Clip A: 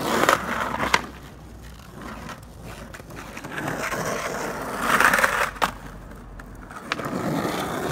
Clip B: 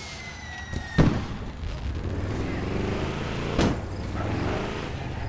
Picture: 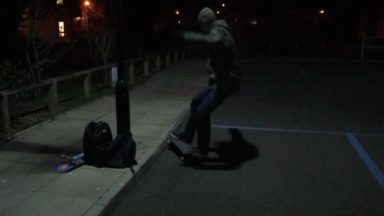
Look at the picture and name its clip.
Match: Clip A